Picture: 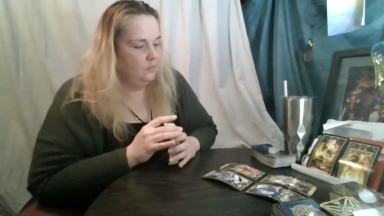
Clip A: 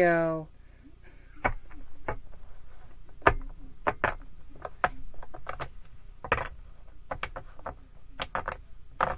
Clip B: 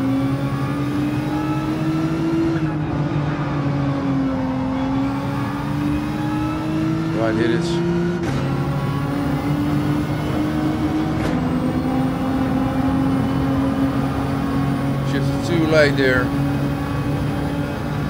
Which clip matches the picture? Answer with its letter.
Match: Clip A